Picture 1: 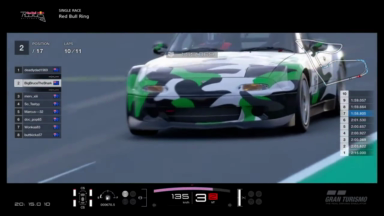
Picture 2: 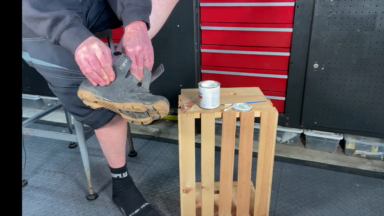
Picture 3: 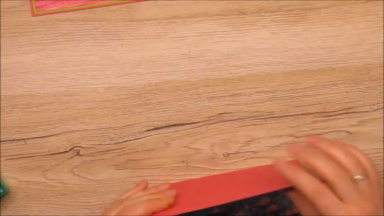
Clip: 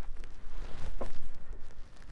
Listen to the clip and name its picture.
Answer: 2